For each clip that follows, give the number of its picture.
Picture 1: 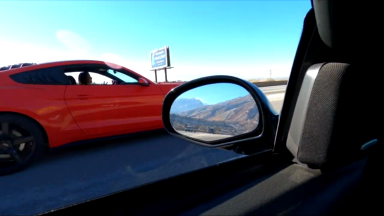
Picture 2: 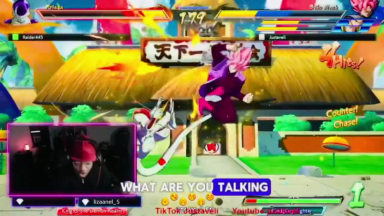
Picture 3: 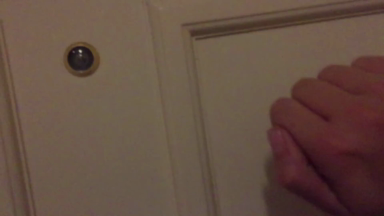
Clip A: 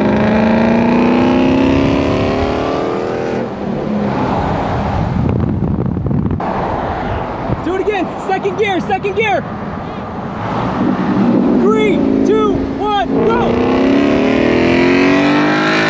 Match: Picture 1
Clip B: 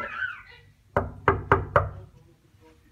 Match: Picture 3